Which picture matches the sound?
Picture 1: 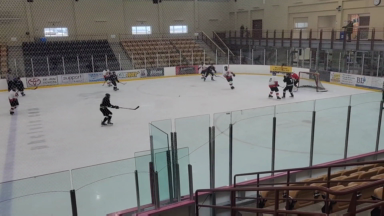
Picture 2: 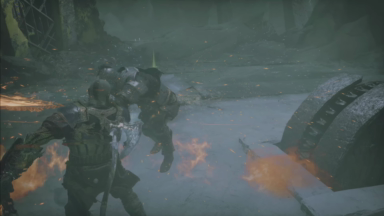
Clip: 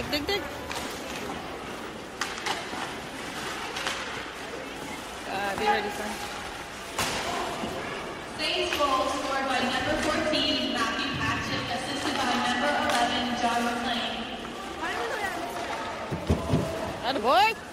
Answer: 1